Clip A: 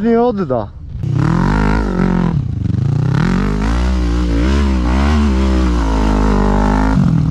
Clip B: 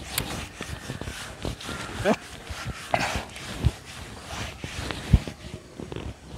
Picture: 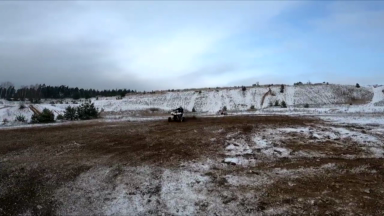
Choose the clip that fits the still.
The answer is A